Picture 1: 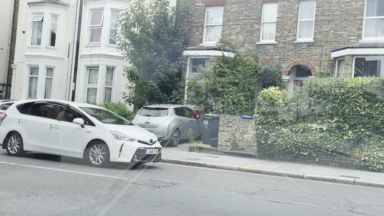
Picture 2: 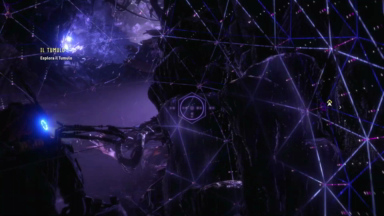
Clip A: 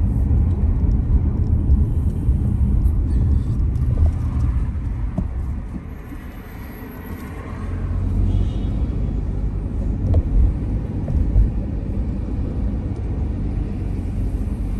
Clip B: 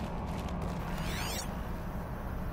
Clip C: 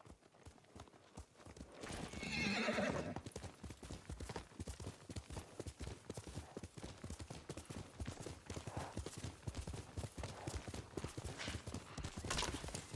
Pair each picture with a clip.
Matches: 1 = A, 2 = B